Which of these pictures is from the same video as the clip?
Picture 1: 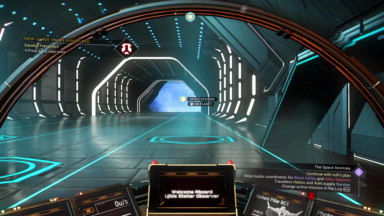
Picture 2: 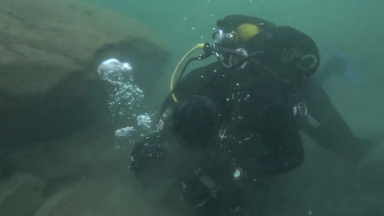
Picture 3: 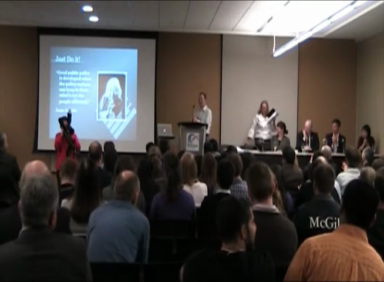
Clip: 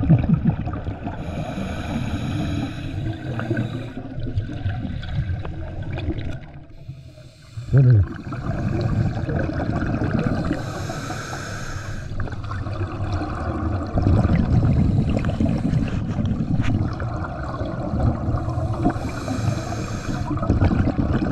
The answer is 2